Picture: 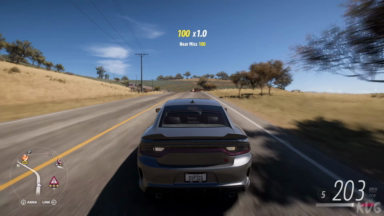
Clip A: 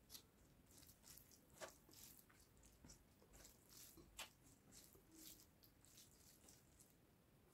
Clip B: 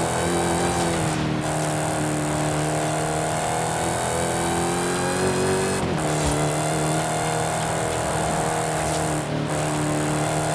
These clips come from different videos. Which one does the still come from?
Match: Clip B